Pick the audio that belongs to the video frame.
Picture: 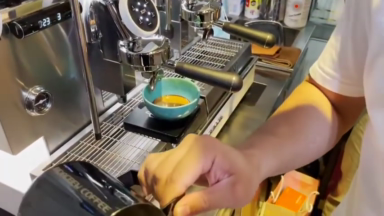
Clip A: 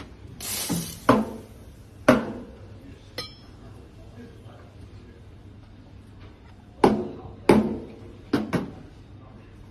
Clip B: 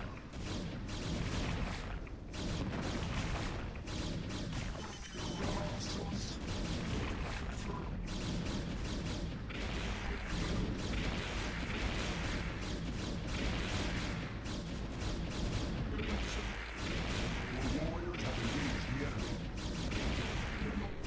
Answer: A